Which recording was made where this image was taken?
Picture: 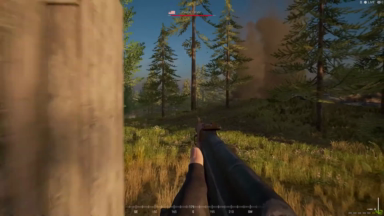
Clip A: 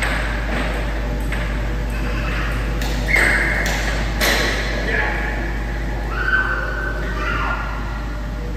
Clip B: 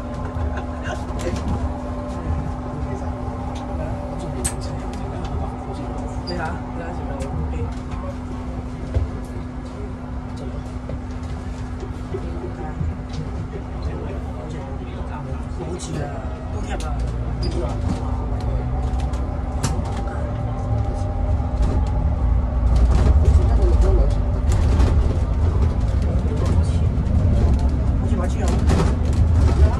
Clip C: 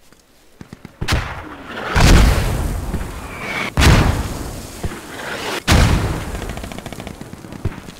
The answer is C